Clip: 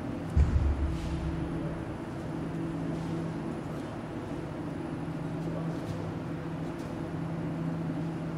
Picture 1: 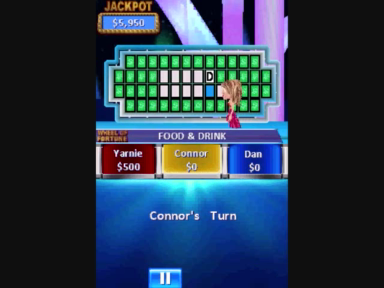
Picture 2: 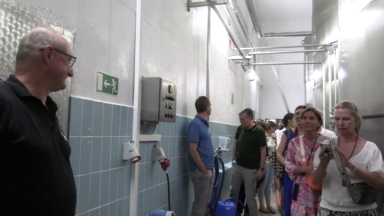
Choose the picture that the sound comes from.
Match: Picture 2